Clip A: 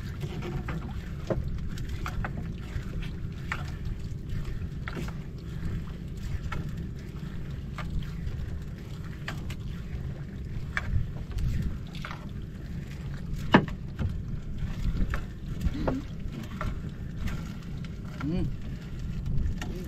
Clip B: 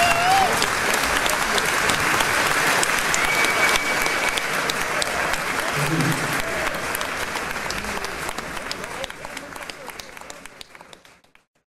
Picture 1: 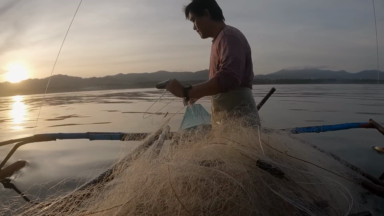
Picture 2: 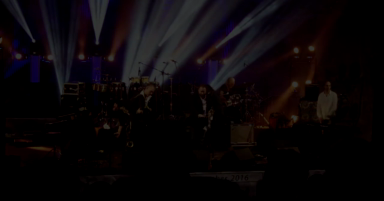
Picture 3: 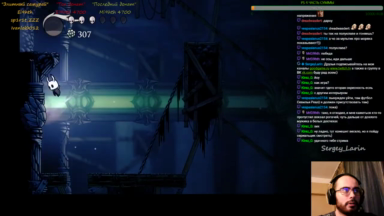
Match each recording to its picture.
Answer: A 1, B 2